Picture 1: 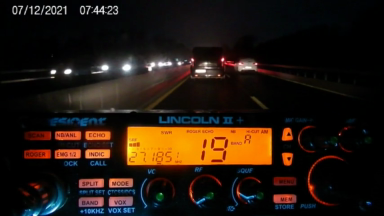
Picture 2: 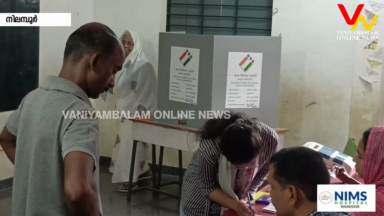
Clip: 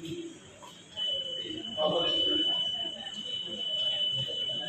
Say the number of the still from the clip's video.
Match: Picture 2